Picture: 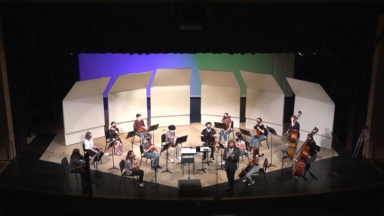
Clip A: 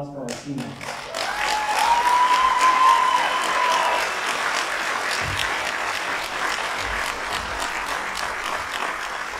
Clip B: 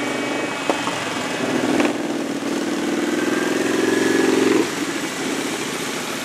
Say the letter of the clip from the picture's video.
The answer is A